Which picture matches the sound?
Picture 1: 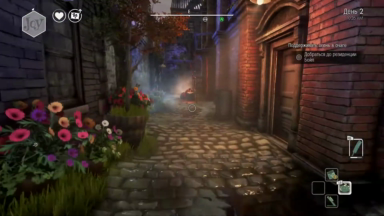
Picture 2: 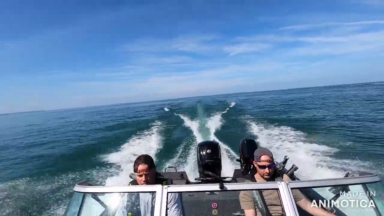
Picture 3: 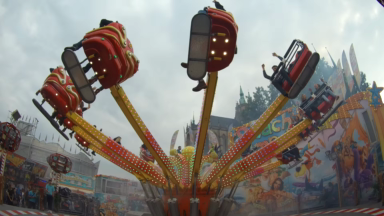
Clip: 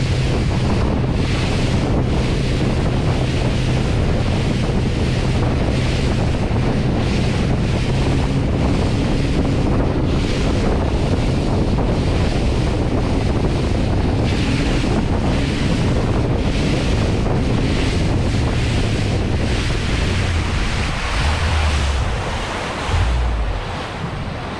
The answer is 2